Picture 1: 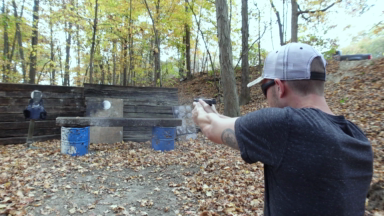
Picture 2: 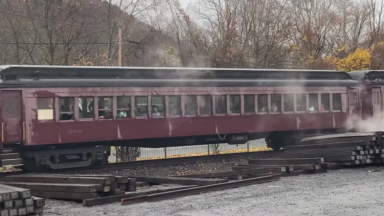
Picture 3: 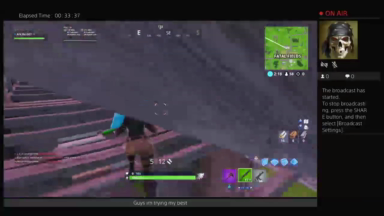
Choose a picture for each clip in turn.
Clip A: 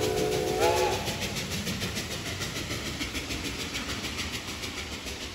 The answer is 2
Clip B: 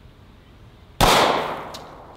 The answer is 1